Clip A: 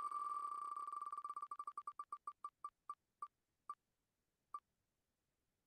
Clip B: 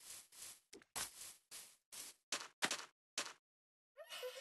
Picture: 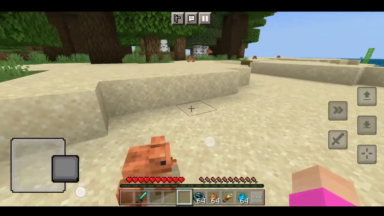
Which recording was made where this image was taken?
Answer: B